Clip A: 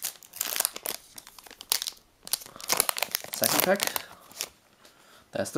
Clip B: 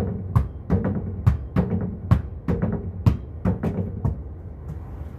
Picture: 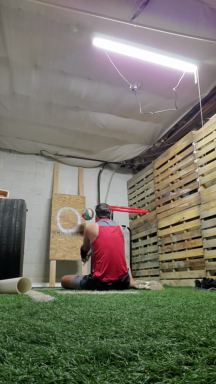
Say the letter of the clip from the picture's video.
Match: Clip B